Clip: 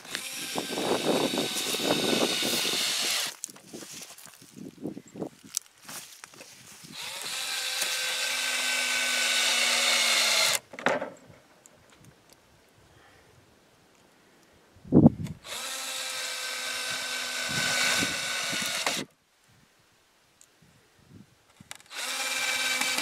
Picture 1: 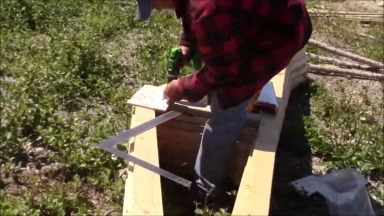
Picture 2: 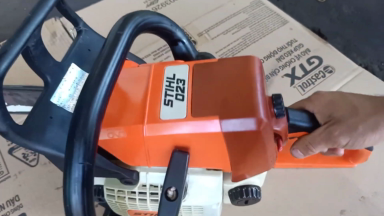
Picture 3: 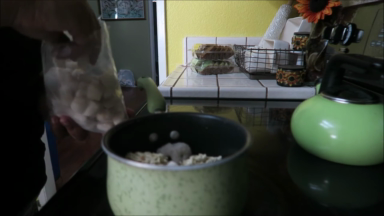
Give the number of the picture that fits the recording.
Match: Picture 1